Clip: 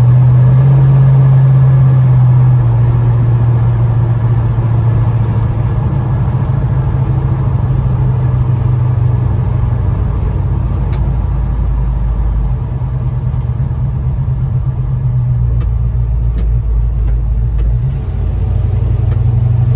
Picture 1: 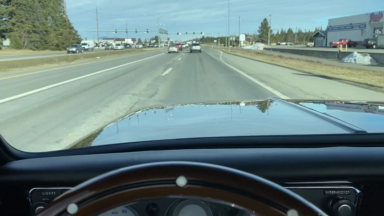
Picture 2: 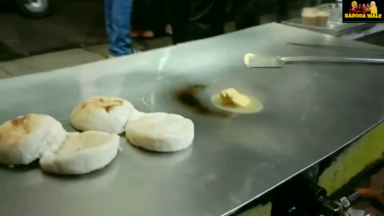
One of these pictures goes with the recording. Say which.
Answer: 1